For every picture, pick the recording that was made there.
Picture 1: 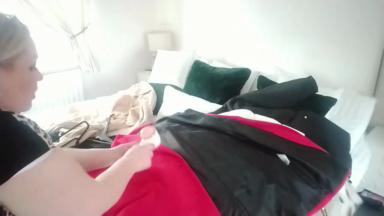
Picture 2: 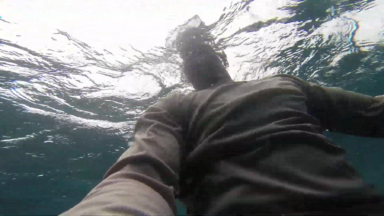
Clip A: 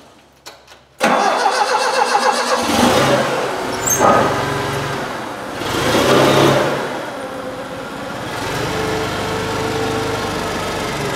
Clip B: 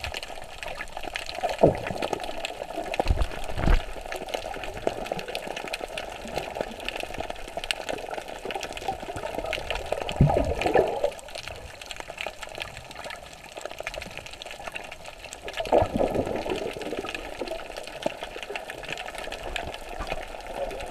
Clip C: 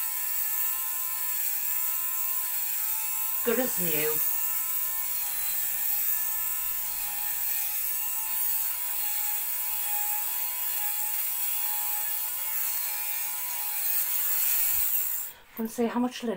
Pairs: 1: C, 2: B